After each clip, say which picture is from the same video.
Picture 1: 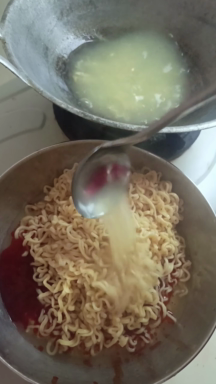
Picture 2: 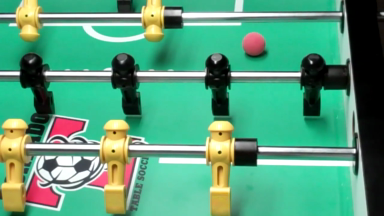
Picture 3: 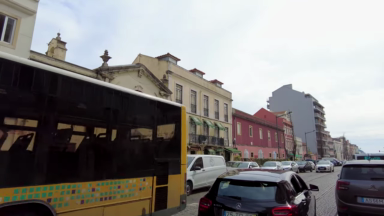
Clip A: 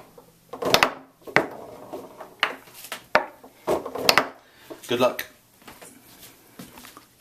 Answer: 2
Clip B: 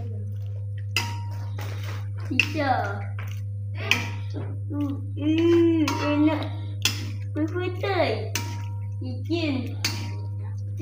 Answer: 1